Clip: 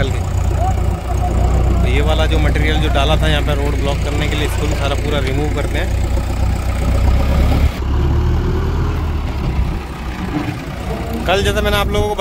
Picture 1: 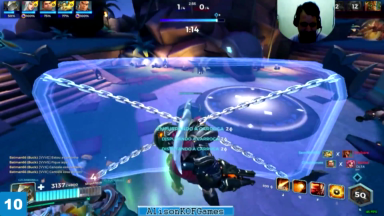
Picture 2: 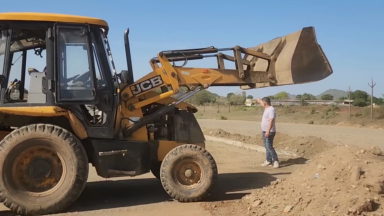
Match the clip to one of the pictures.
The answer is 2